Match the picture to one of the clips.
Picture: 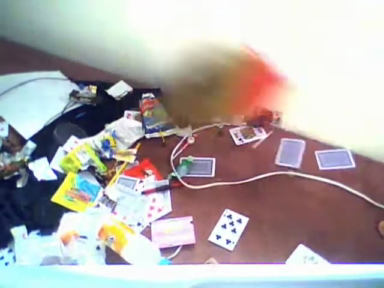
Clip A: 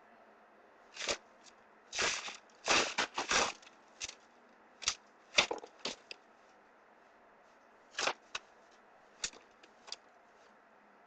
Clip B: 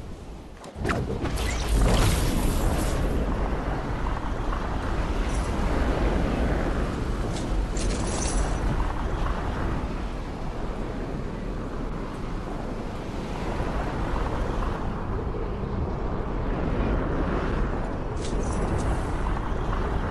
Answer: A